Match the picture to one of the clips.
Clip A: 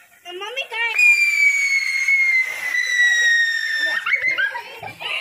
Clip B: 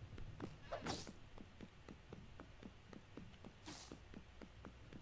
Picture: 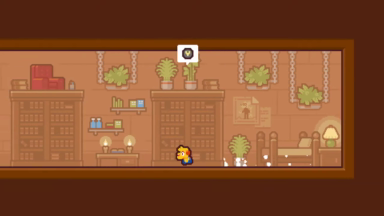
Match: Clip B